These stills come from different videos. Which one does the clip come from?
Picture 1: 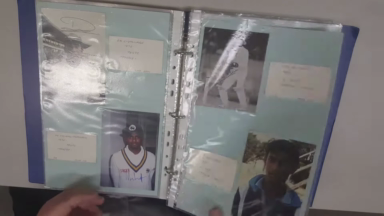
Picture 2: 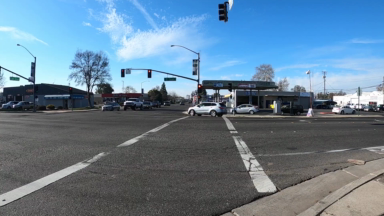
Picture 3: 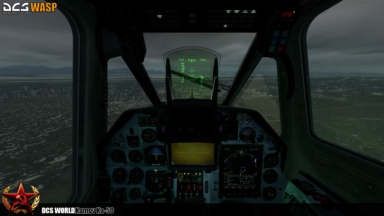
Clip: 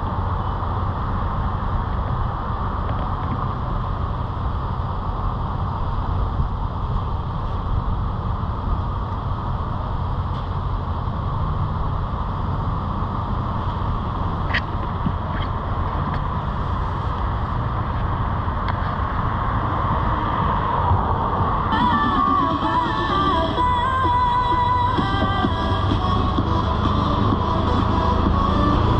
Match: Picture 2